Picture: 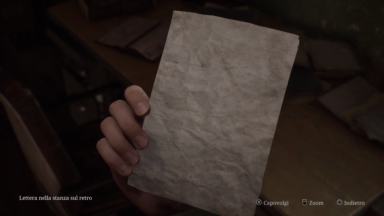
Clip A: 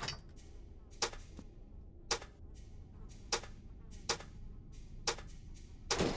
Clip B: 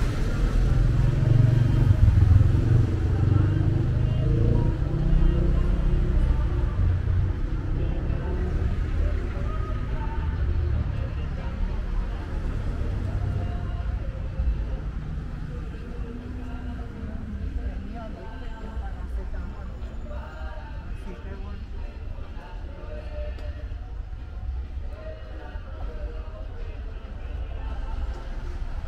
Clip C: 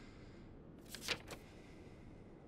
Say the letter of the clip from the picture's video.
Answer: C